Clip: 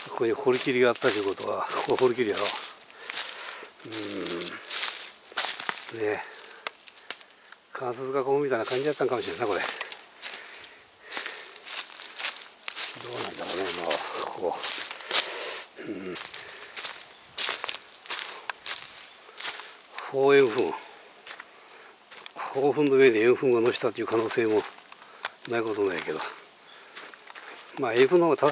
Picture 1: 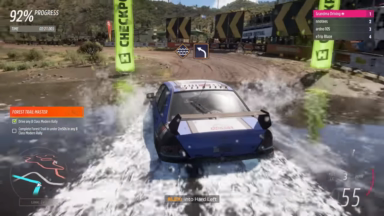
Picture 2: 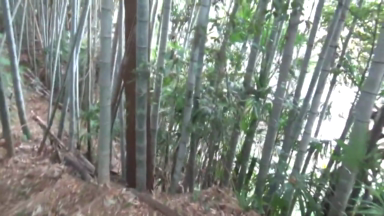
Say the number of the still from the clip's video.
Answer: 2